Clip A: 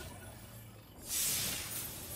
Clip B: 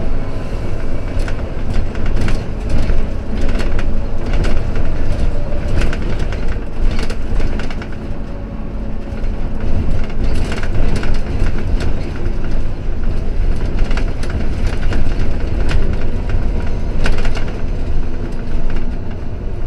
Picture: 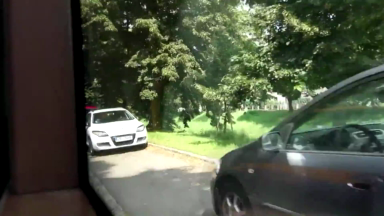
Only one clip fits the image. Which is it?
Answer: B